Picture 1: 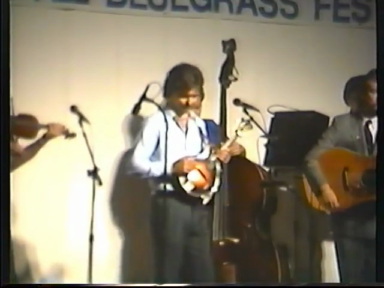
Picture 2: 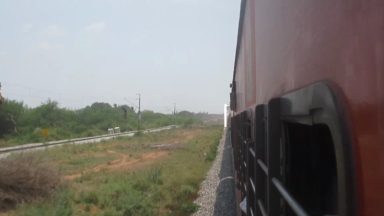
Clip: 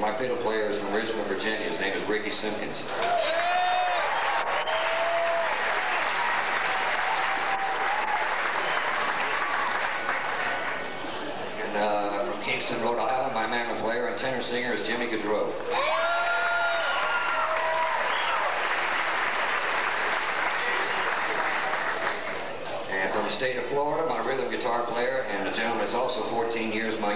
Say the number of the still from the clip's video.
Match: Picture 1